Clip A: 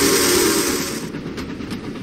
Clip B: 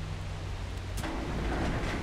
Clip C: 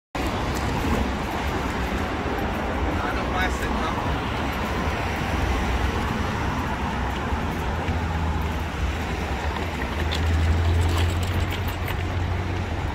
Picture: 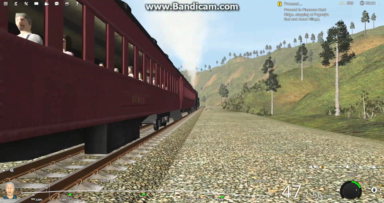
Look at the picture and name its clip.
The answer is A